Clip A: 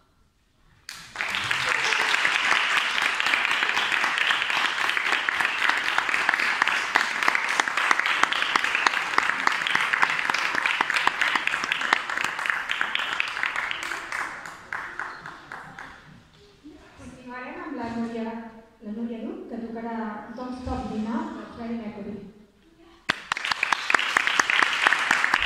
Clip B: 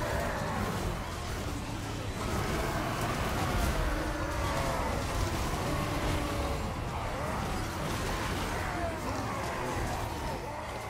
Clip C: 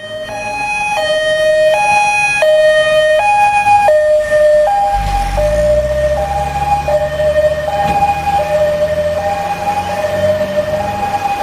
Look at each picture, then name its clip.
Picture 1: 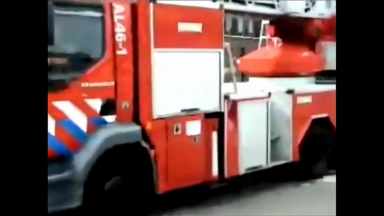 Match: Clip C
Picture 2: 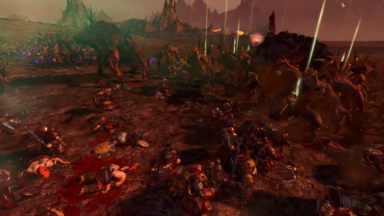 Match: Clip B